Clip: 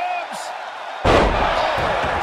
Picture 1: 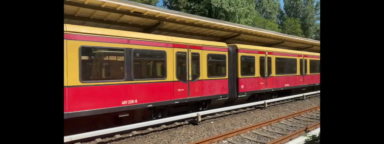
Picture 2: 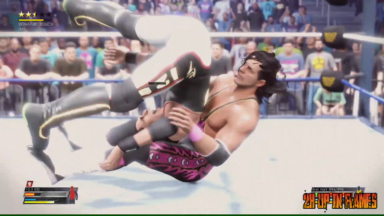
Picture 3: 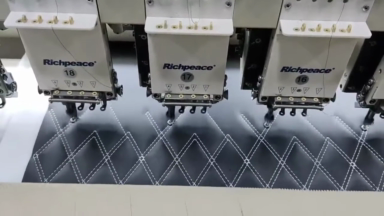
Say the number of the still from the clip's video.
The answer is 2